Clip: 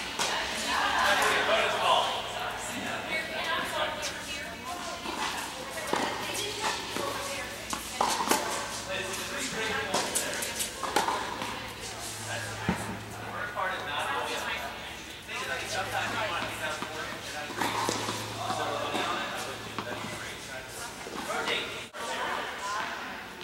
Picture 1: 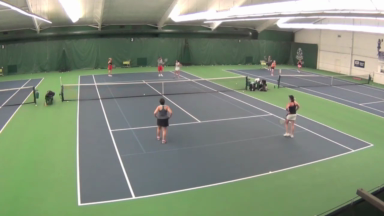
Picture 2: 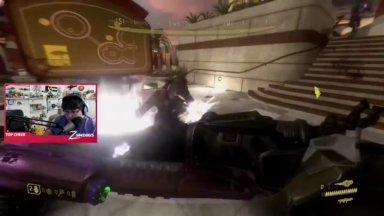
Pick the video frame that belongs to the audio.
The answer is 1